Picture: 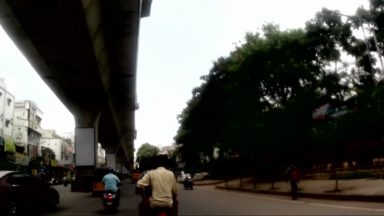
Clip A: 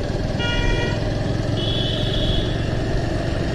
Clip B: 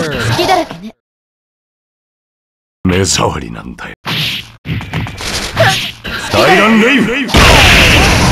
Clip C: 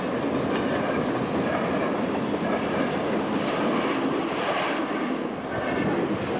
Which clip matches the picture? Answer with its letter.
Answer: A